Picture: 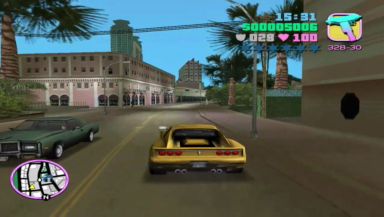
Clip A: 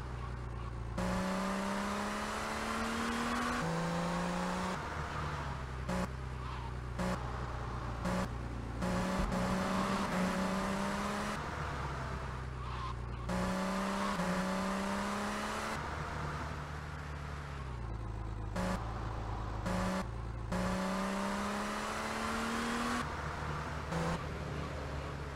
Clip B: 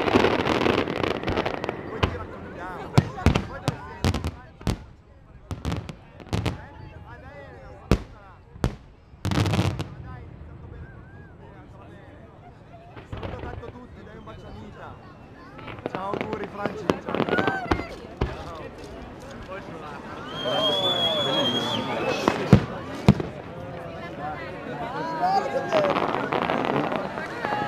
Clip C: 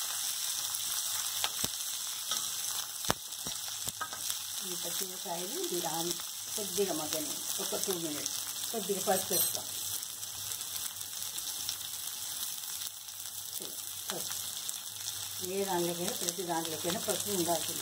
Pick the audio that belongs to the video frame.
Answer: A